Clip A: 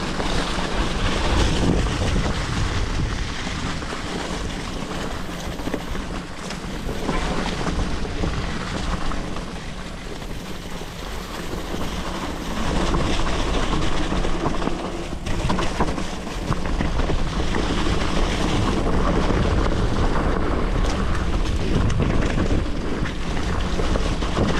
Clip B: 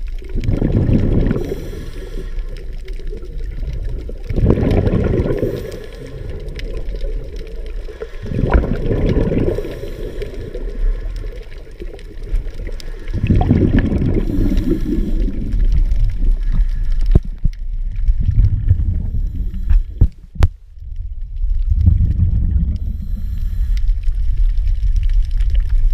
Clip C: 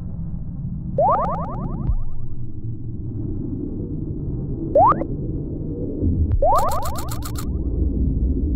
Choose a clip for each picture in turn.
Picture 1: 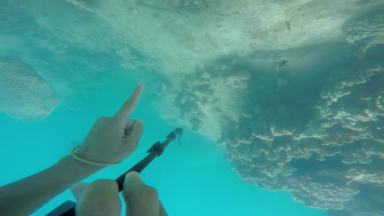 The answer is B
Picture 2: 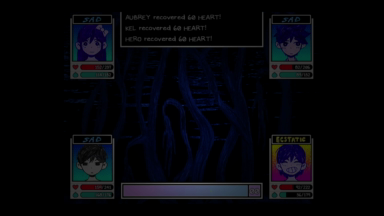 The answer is C